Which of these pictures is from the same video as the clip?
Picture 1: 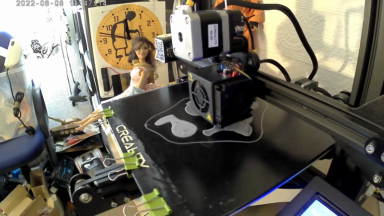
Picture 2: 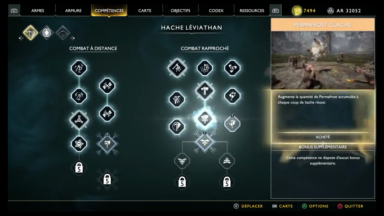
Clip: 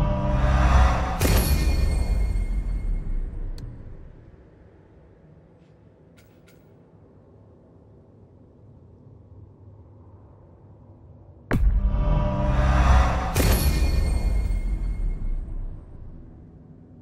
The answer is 2